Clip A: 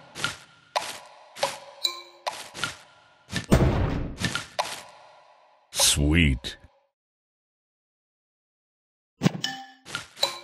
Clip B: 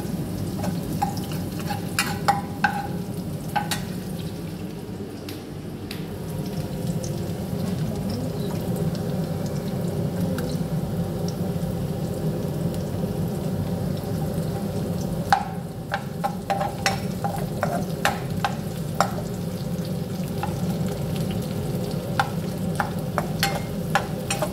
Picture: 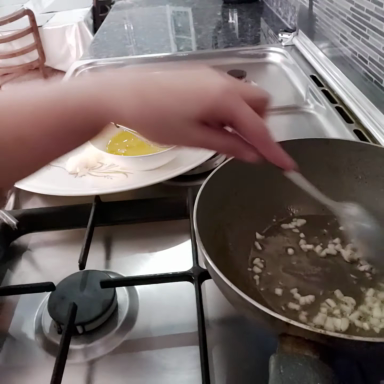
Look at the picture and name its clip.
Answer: B